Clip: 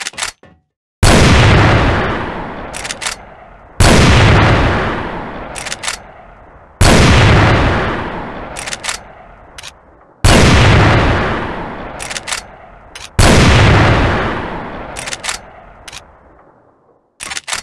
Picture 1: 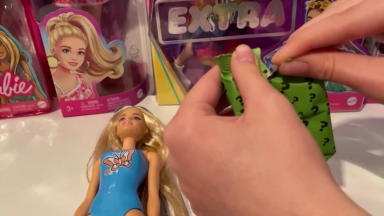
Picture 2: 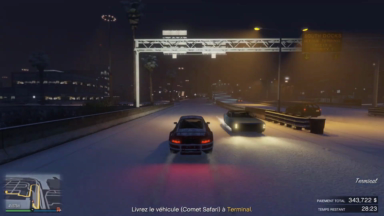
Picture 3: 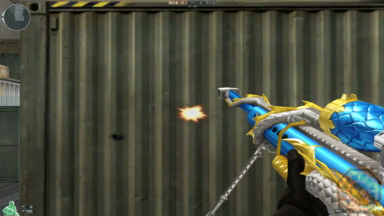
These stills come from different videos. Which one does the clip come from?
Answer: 3